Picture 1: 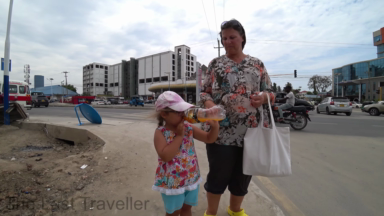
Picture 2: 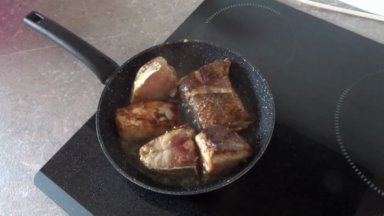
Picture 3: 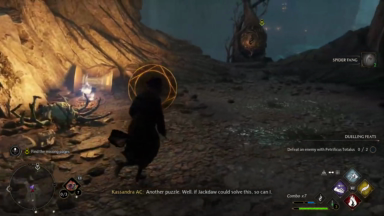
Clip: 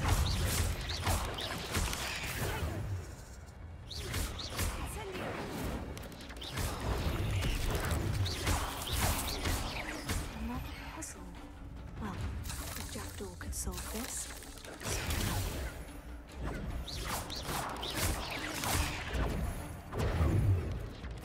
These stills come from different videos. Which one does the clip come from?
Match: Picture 3